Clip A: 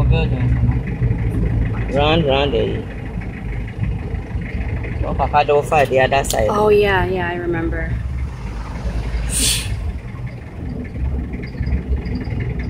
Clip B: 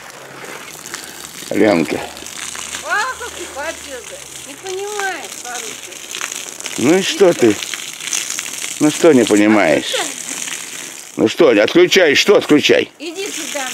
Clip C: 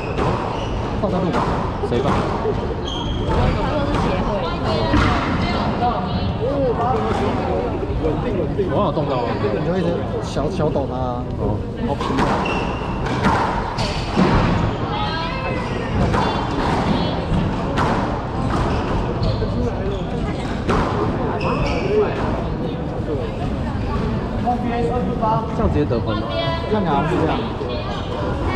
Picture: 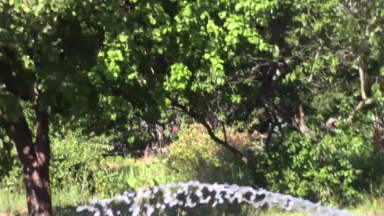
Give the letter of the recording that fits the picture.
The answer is B